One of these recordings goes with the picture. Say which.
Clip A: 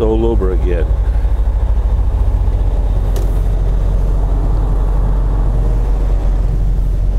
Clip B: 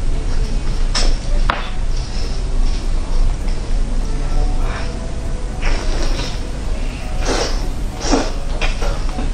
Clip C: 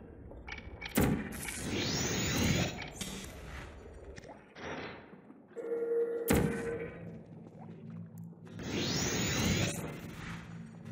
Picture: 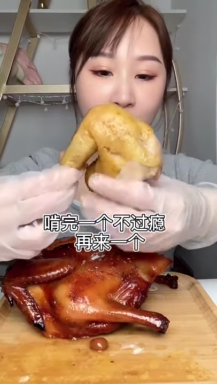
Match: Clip B